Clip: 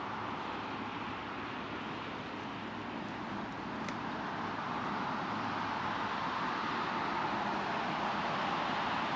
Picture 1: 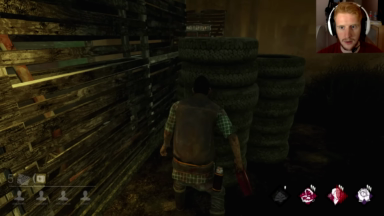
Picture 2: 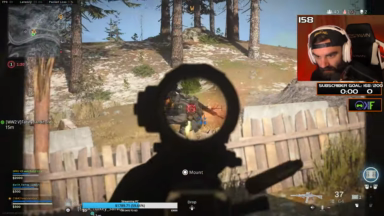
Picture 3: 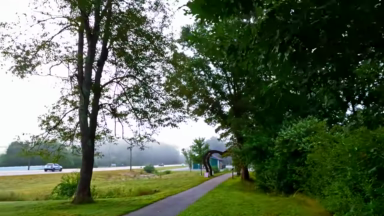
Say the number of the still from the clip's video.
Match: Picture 3